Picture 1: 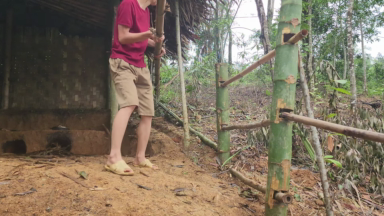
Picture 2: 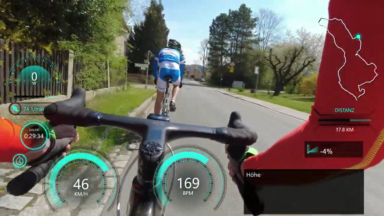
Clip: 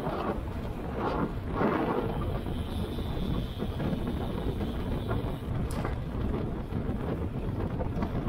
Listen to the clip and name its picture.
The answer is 2